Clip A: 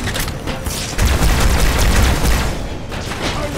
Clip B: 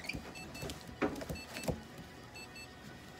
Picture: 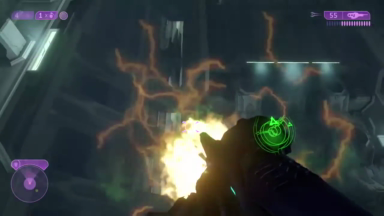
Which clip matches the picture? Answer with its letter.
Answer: A